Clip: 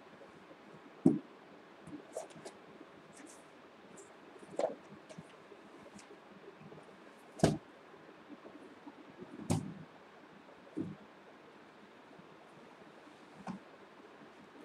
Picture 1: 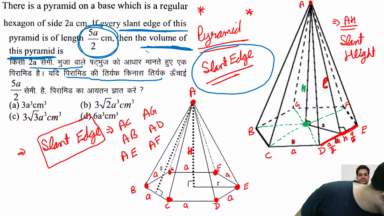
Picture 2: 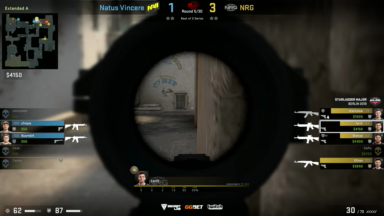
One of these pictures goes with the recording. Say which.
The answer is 1